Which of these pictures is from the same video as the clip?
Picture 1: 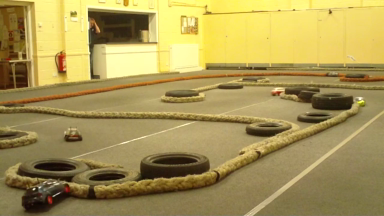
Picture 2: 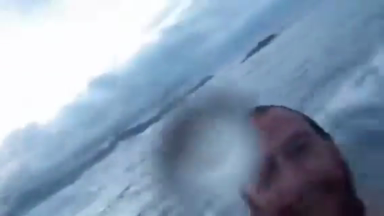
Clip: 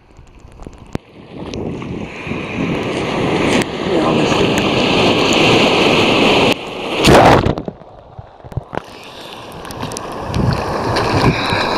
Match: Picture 2